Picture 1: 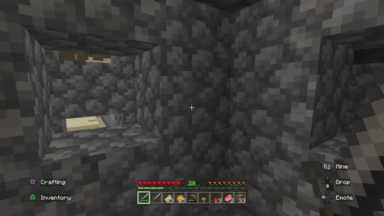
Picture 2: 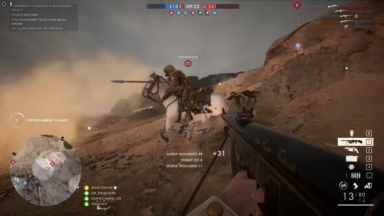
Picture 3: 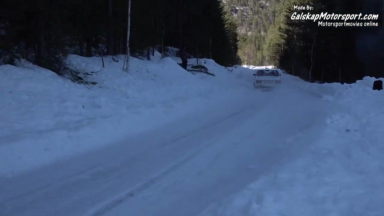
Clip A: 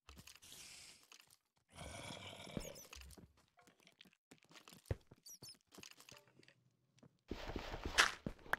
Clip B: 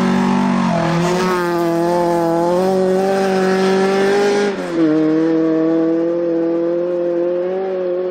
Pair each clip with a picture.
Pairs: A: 1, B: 3